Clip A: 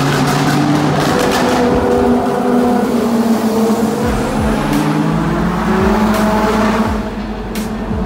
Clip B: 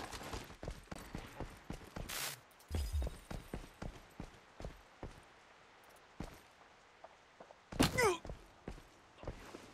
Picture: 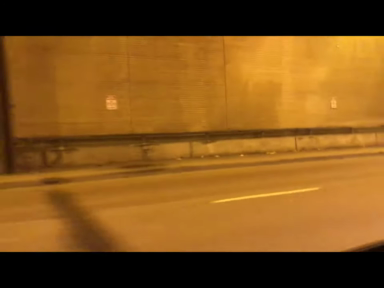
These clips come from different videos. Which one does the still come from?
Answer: A